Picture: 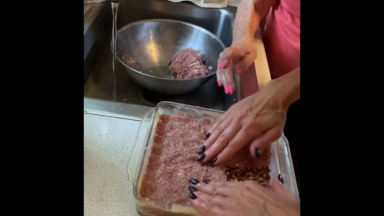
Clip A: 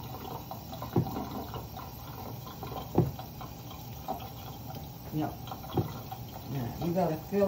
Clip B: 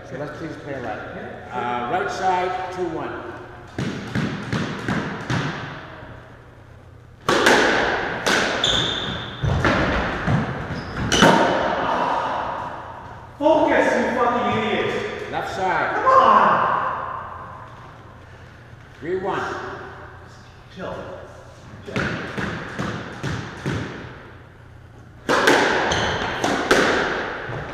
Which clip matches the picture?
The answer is A